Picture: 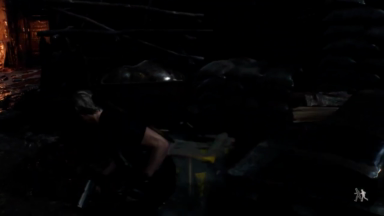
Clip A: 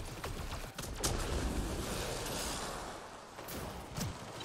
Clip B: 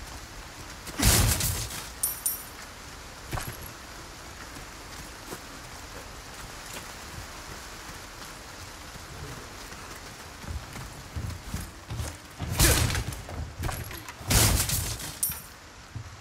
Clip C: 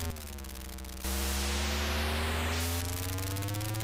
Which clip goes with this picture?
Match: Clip B